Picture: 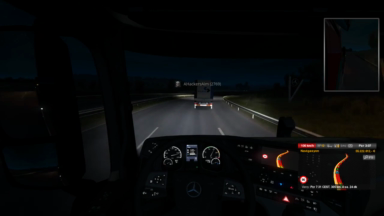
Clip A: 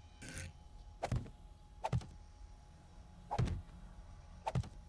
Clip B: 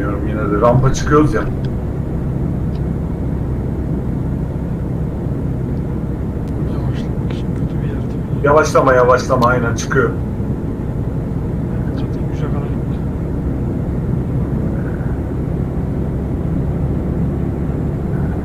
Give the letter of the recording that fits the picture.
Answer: B